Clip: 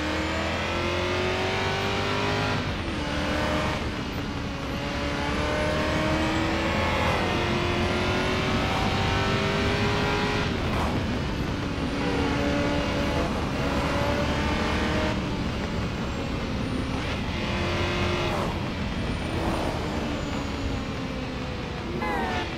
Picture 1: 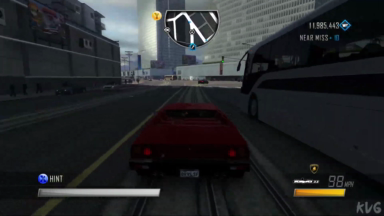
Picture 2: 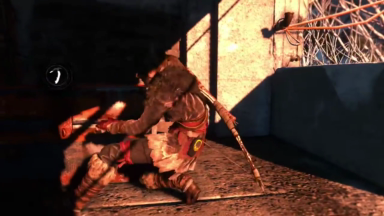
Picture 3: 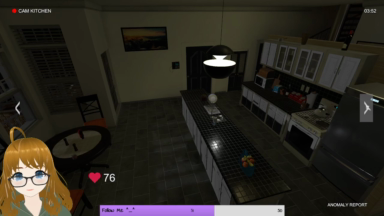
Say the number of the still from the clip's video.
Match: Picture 1